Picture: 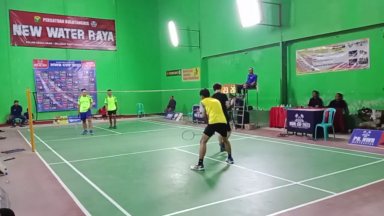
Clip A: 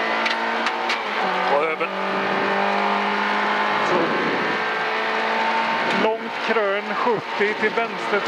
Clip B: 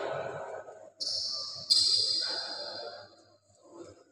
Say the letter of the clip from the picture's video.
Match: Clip B